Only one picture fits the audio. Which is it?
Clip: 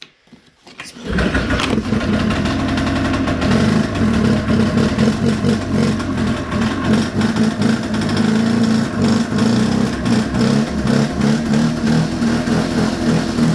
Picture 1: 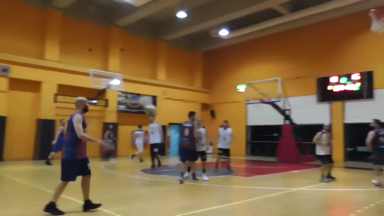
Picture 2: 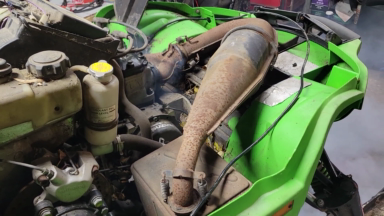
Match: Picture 2